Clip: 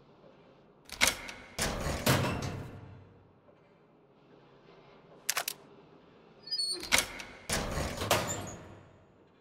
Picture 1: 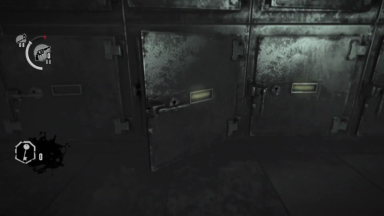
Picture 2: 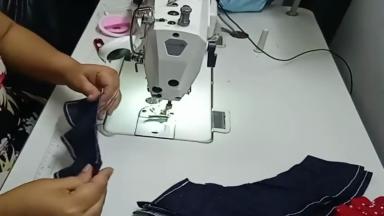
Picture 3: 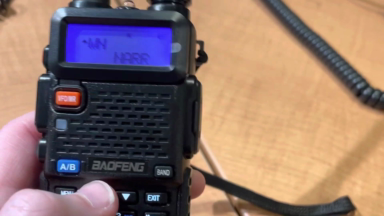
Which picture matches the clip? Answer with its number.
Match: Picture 1